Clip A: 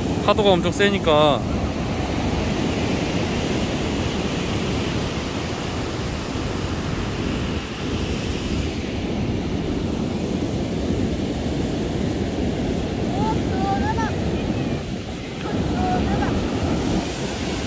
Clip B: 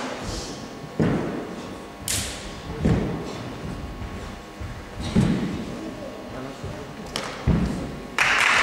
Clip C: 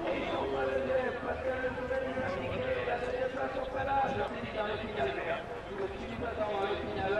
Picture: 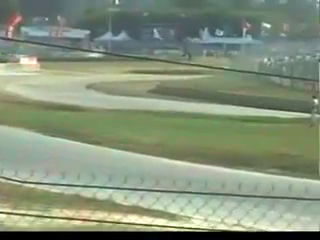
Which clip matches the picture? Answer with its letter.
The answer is C